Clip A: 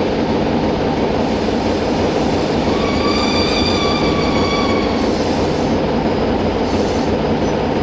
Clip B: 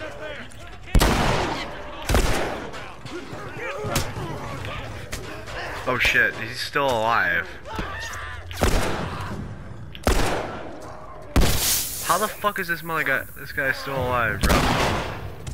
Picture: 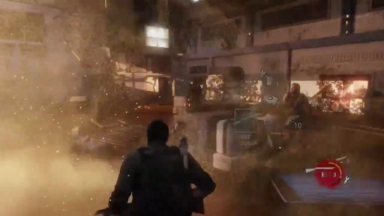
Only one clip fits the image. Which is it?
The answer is B